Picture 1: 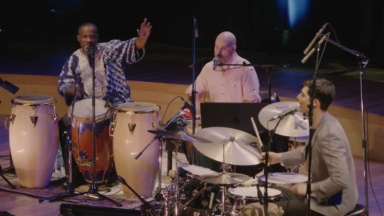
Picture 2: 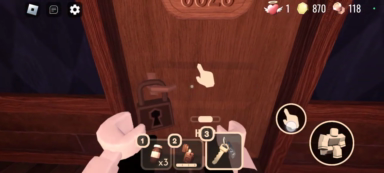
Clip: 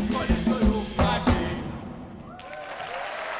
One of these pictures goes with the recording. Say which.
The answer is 1